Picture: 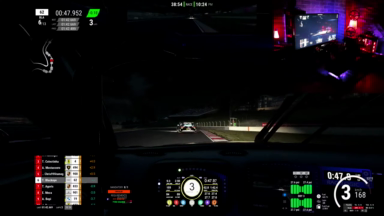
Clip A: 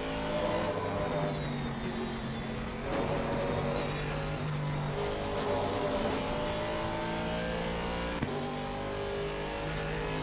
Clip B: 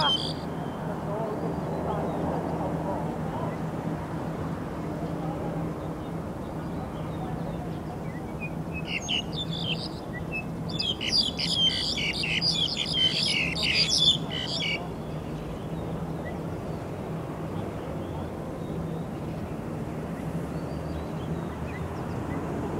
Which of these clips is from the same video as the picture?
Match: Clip A